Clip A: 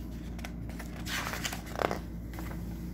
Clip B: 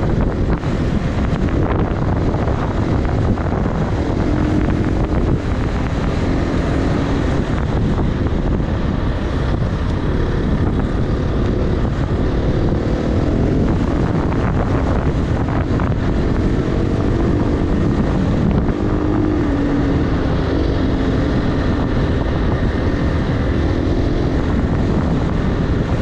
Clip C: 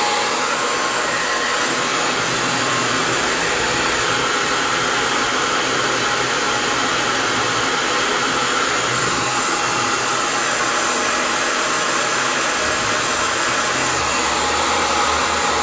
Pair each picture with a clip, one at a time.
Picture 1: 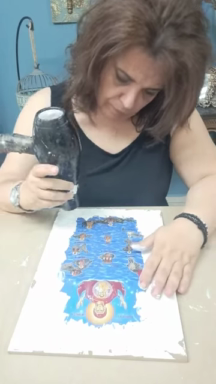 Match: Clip C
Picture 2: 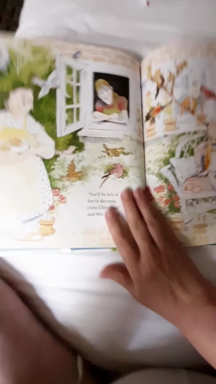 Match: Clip A